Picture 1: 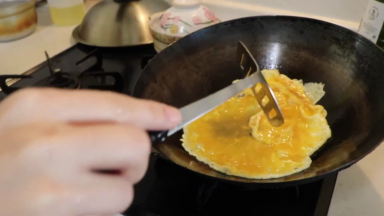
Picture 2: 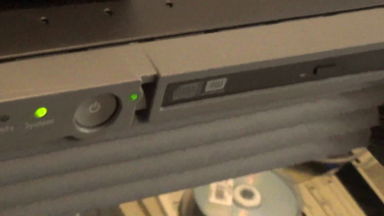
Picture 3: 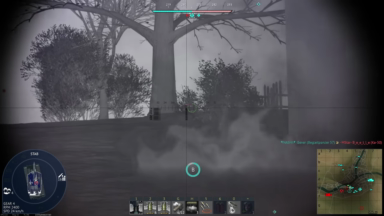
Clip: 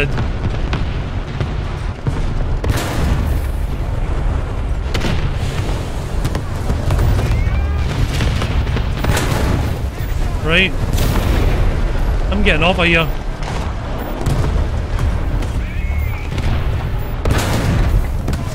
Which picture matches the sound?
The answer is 3